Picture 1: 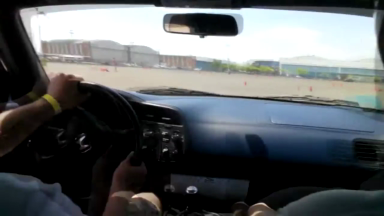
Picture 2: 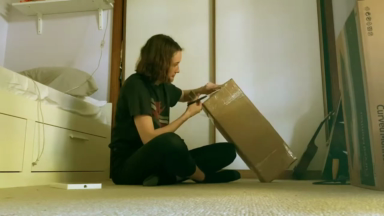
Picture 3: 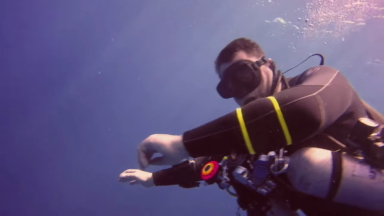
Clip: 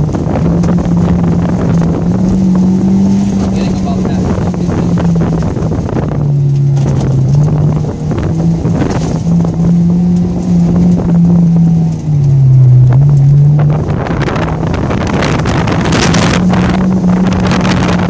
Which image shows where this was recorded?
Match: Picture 1